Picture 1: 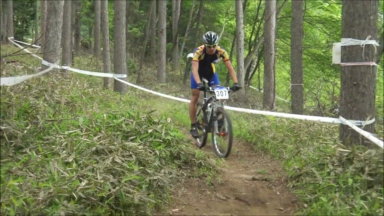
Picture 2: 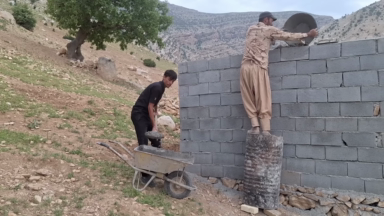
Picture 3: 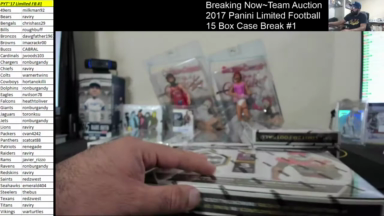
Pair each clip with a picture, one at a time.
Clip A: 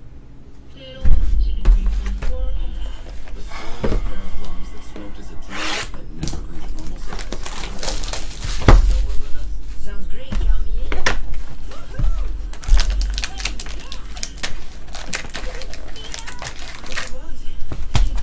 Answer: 3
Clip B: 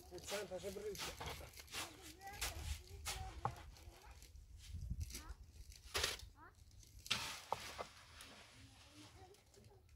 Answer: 2